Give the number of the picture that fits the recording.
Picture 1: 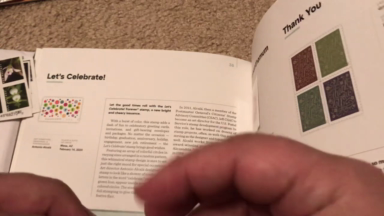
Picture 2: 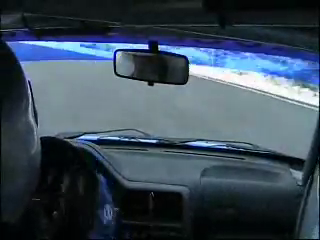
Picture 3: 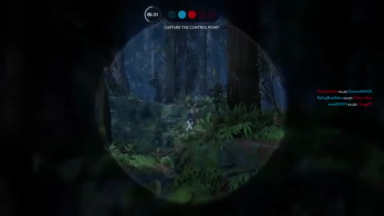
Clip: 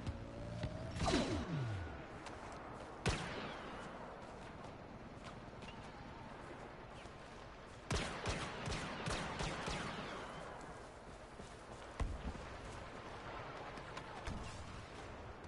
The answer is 3